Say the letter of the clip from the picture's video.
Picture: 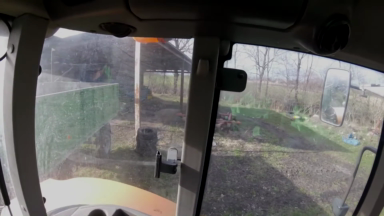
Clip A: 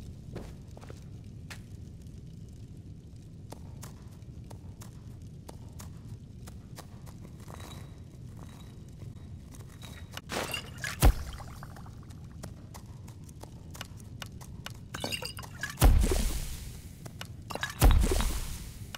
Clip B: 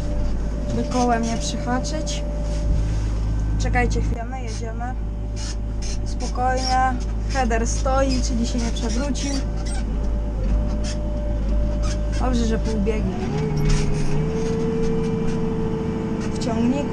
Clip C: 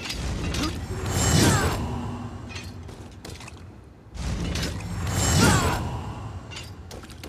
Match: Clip B